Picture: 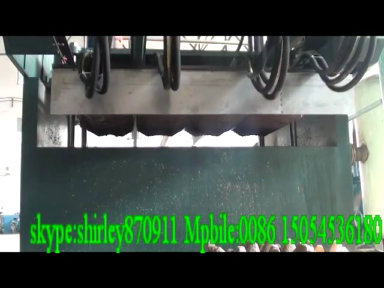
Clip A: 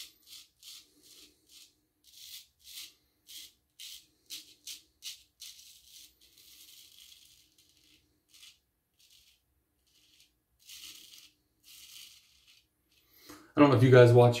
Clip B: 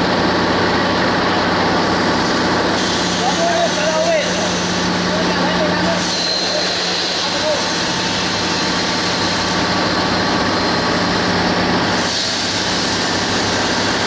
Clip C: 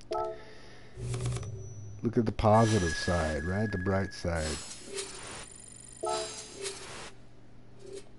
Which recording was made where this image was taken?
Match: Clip B